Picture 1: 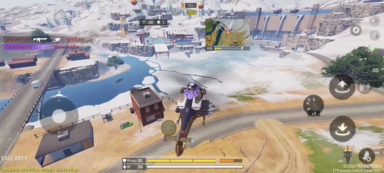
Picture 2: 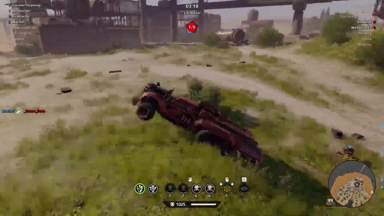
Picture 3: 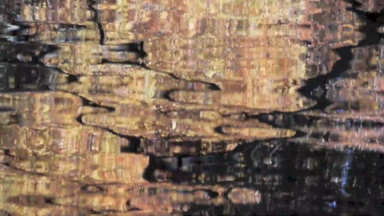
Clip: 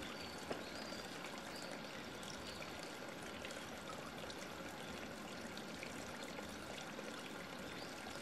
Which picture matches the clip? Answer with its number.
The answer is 3